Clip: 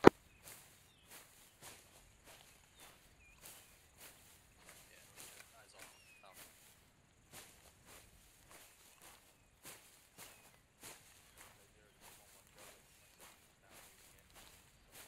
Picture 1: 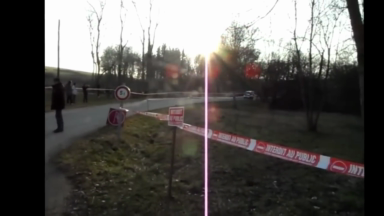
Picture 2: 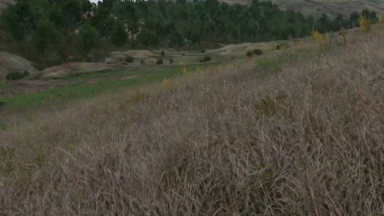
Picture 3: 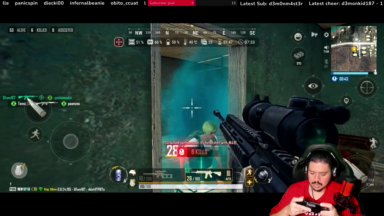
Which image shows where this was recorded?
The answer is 2